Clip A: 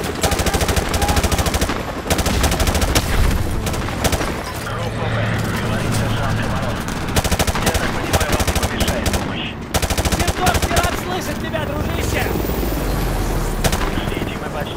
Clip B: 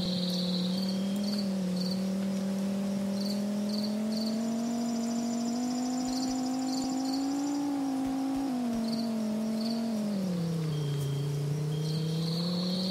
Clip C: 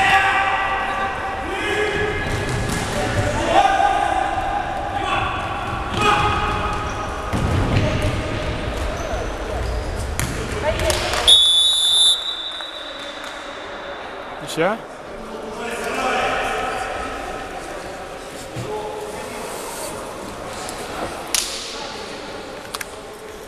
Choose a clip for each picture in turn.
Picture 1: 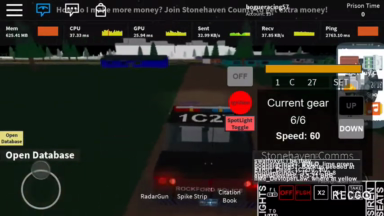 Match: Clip B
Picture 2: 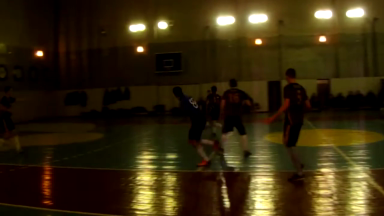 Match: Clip C